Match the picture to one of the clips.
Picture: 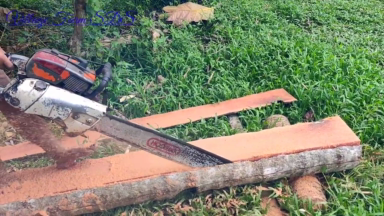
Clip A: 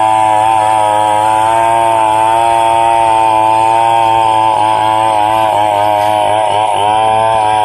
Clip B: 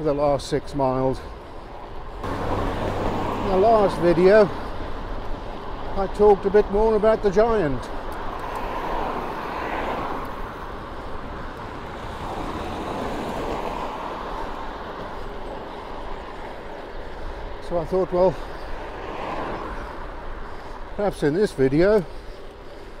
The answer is A